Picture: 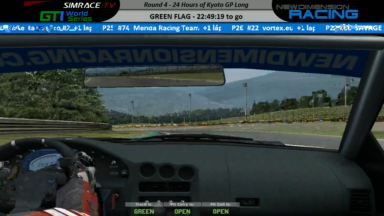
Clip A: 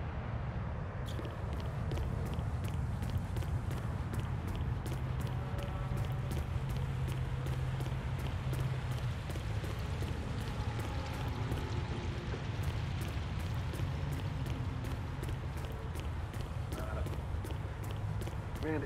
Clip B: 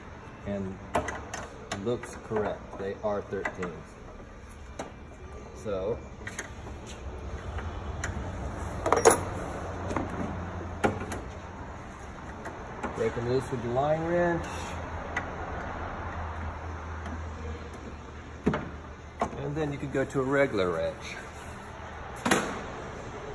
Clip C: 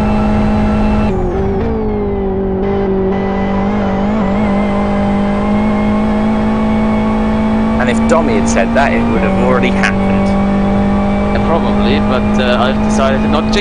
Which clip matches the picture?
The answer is C